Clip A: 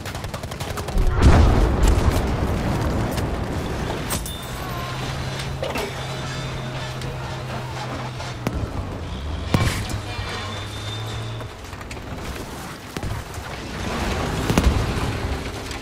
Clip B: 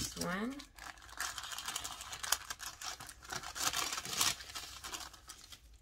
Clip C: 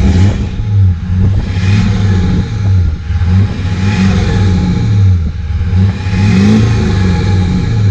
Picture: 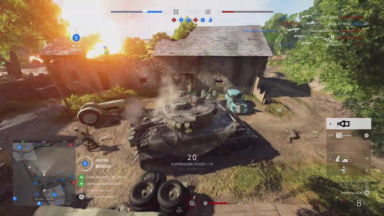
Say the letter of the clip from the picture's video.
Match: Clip A